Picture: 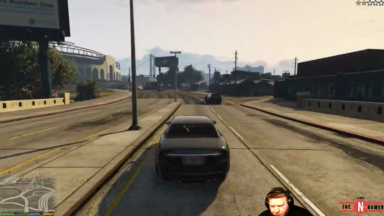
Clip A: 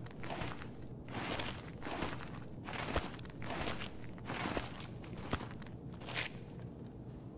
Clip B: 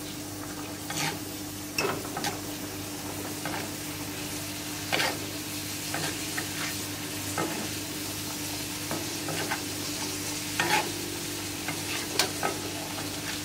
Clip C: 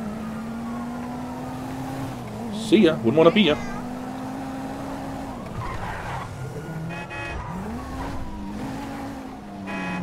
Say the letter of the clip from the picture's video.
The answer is C